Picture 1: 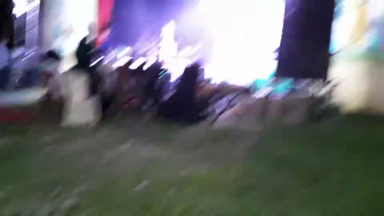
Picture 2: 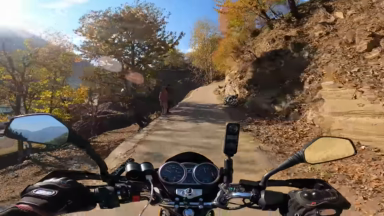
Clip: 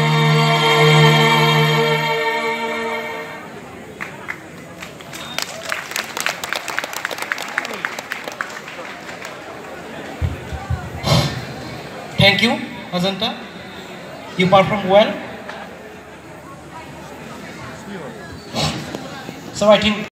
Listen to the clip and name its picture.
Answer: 1